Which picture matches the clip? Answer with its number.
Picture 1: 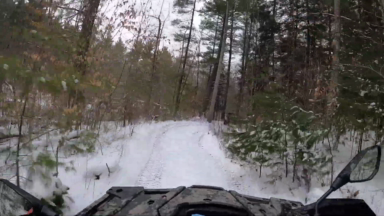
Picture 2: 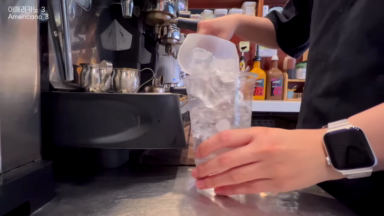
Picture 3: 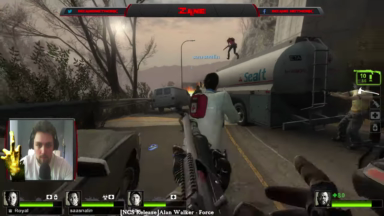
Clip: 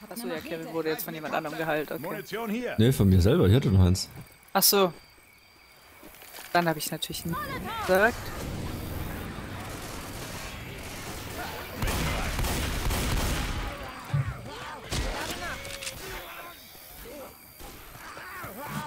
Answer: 3